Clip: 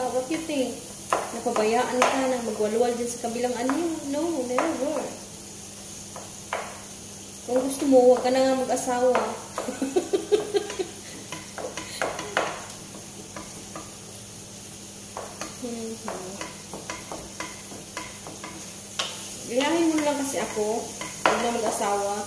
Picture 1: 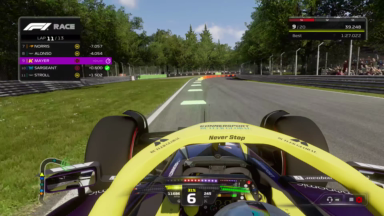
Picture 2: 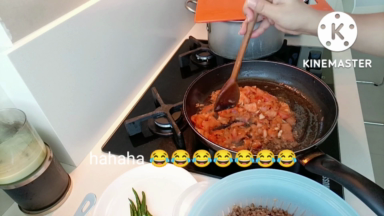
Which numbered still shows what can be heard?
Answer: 2